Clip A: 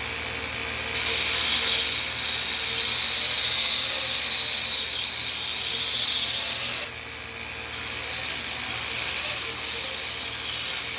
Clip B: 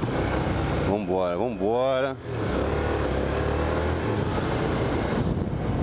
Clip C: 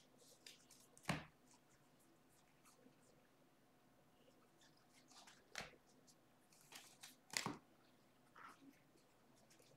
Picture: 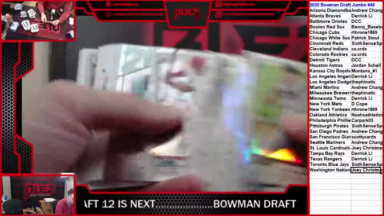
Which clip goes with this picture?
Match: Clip C